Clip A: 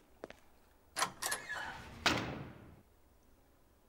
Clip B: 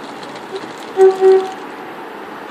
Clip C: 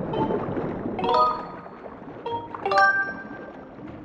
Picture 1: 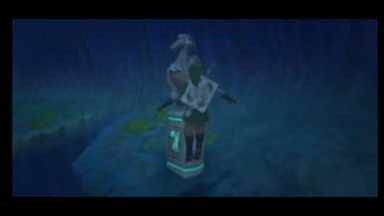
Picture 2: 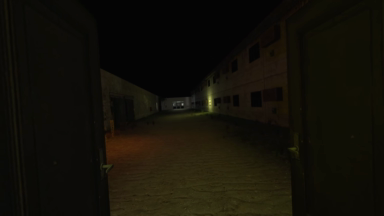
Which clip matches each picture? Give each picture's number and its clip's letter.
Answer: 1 C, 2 A